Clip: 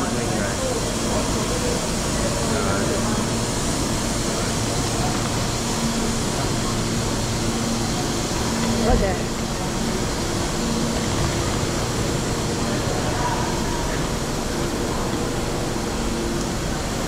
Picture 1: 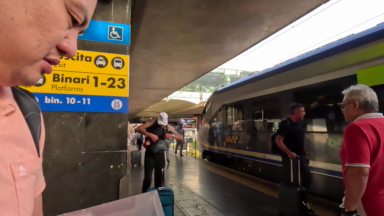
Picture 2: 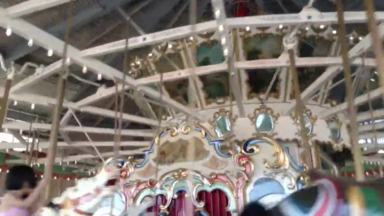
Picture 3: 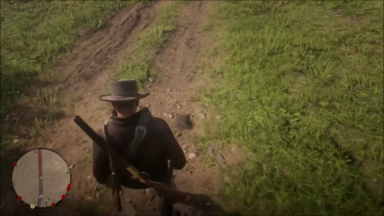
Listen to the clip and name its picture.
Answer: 1